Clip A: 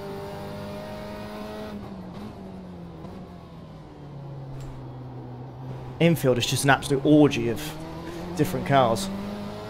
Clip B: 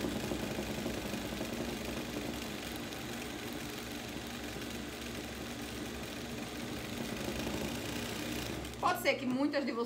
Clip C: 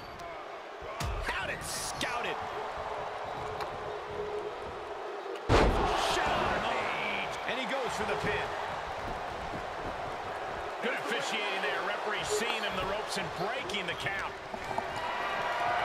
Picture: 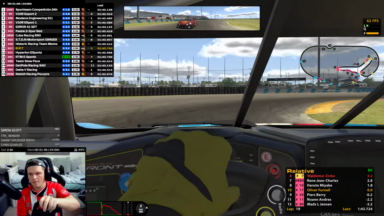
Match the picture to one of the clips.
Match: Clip A